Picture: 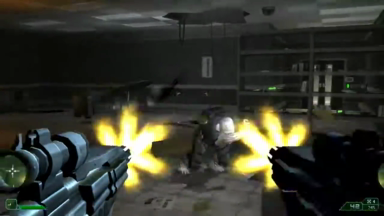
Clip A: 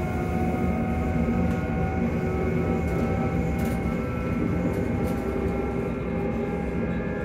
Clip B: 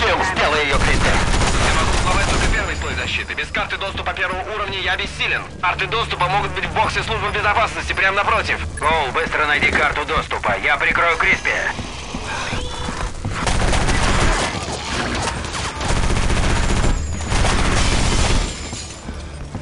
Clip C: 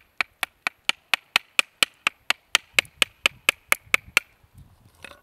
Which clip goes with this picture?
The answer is B